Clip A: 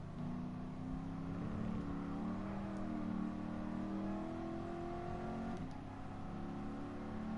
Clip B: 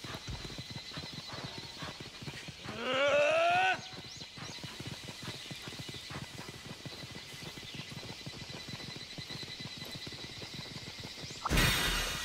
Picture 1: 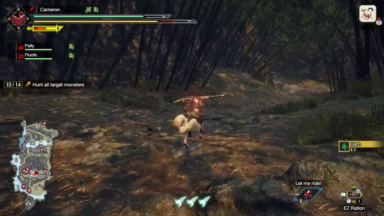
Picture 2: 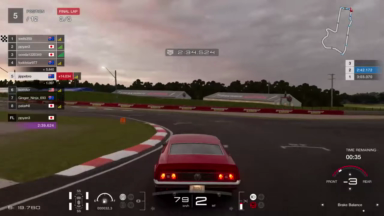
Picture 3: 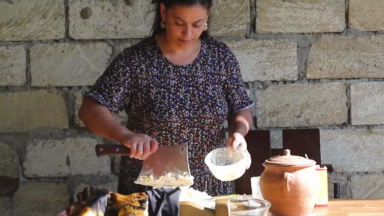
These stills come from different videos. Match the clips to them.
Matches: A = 2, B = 1